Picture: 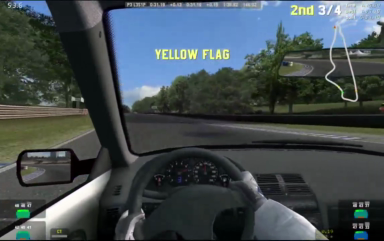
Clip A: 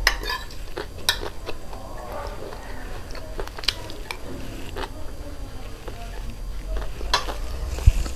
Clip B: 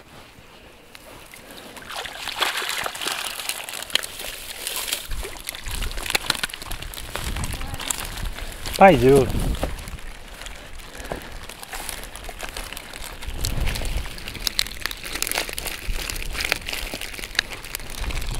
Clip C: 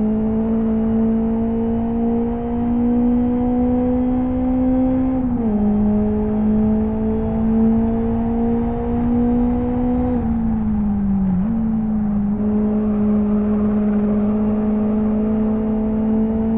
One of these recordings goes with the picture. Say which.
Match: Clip C